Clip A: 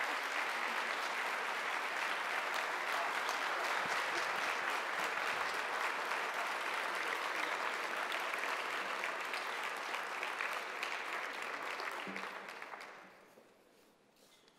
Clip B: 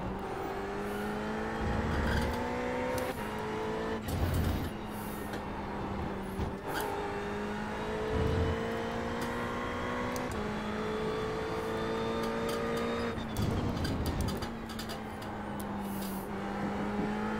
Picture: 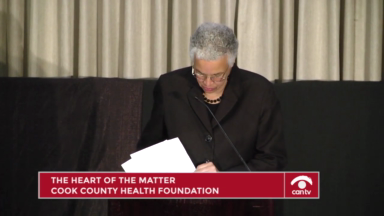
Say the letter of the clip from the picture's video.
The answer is A